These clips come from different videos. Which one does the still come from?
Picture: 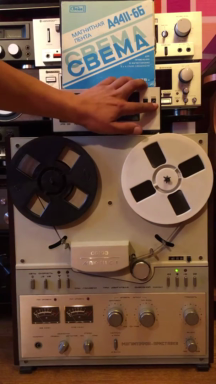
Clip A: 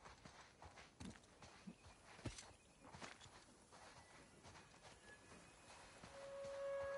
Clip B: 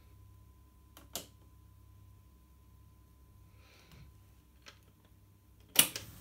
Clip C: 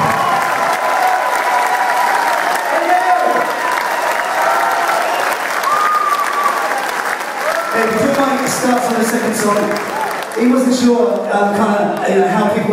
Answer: B